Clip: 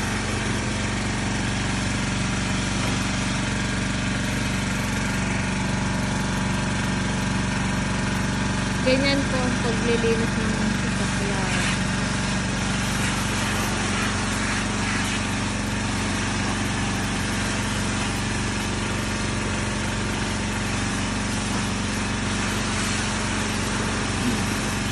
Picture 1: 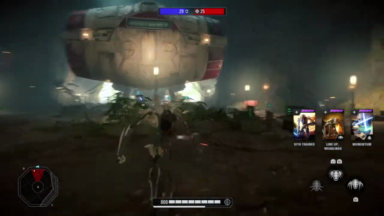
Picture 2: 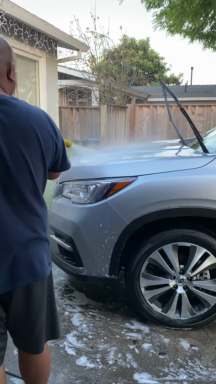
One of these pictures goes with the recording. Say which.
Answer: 2